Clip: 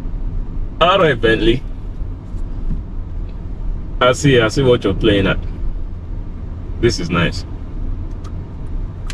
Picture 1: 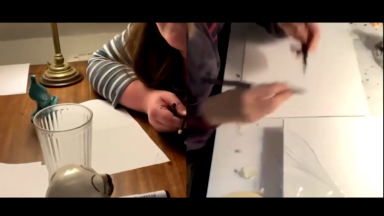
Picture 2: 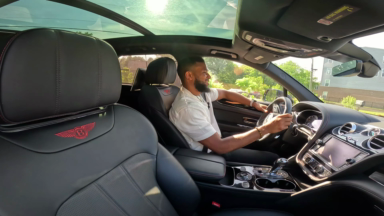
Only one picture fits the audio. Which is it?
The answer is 2